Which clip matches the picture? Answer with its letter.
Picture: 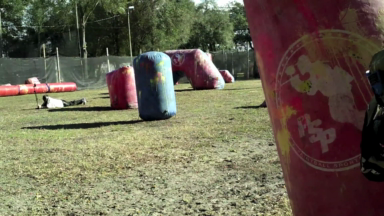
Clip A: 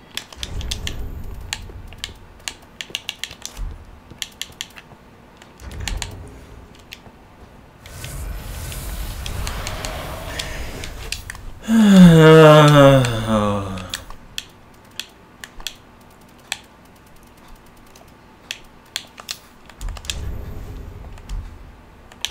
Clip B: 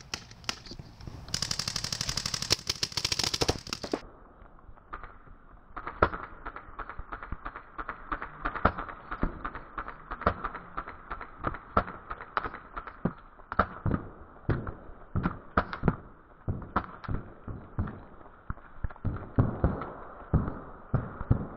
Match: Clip B